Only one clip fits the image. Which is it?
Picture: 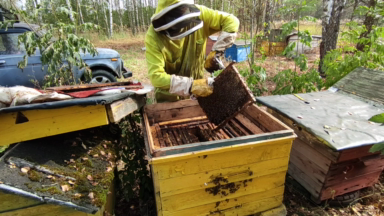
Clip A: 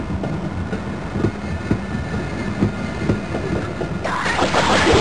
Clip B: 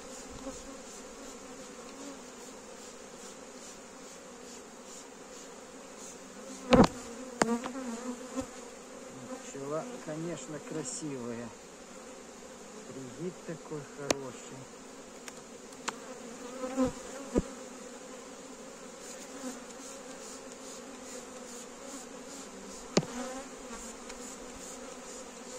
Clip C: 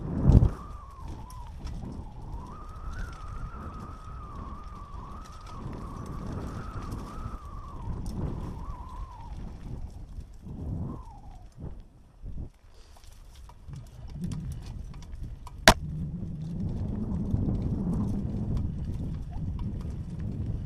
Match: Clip B